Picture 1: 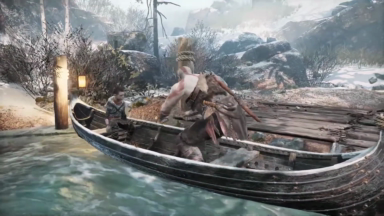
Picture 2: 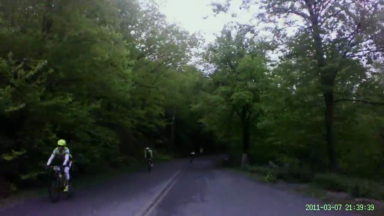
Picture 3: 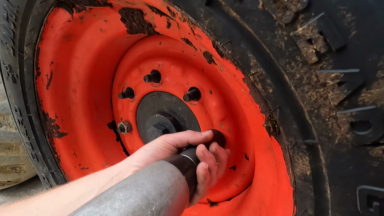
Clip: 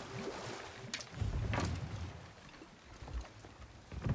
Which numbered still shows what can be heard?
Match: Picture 1